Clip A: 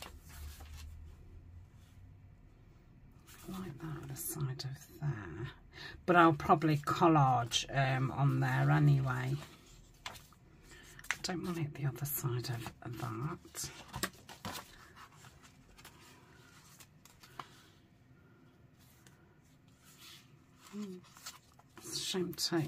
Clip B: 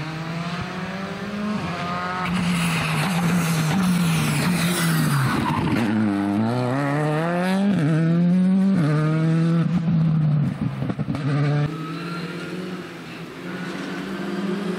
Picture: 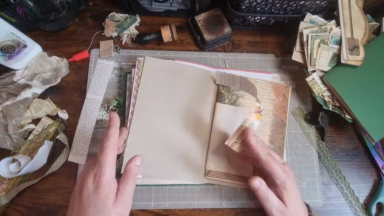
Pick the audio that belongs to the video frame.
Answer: A